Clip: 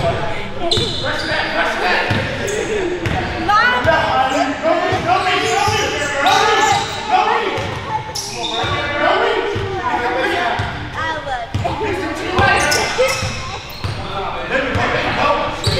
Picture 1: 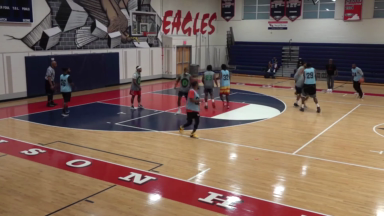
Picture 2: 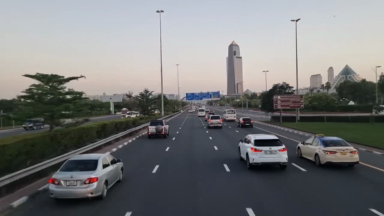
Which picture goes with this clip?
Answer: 1